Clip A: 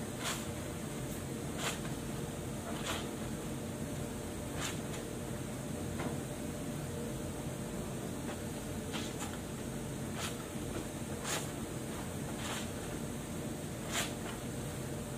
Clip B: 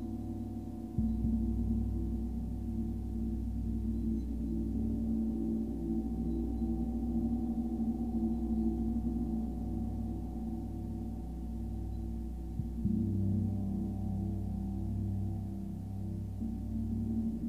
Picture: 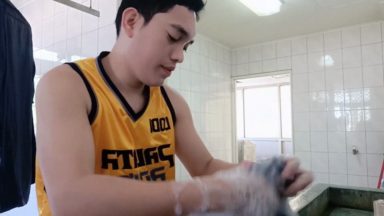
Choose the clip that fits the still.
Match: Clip A